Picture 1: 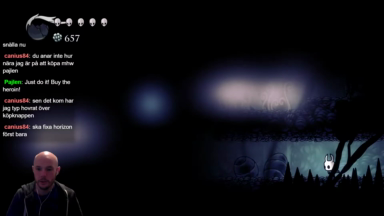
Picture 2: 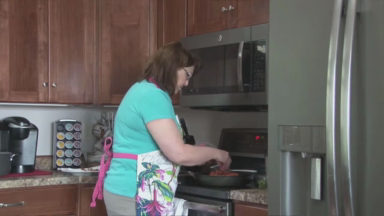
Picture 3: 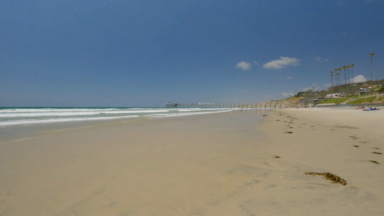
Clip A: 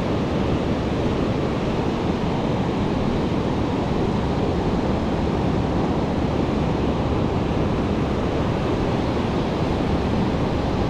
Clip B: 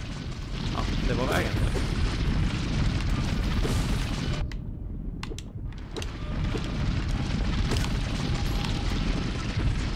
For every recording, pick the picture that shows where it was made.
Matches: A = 3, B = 1